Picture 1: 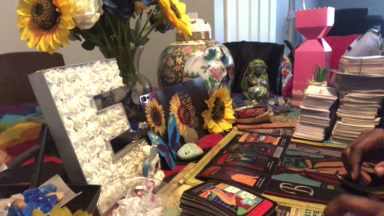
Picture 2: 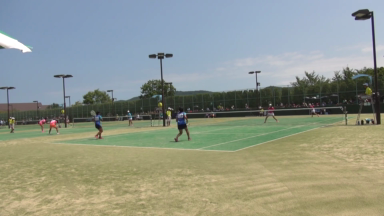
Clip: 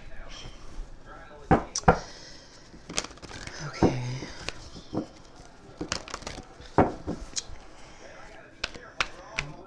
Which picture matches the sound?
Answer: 1